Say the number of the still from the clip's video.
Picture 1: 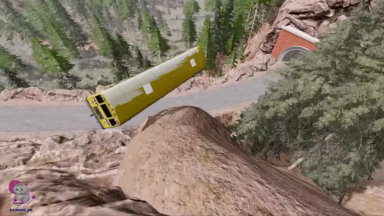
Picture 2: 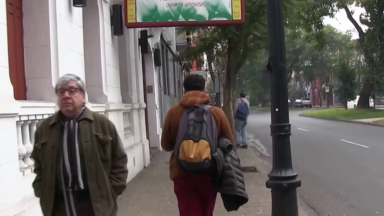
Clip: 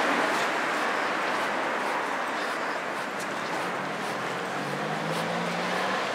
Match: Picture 2